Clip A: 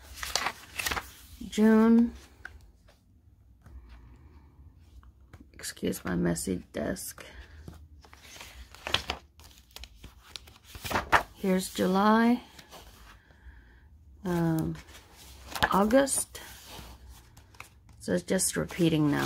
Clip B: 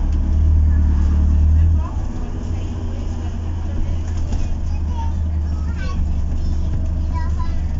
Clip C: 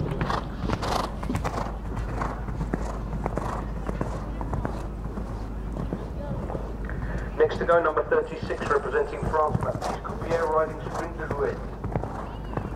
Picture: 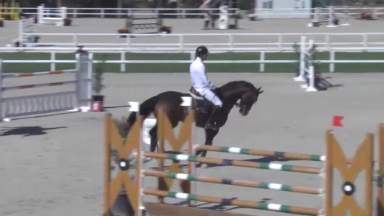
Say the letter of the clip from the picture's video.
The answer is C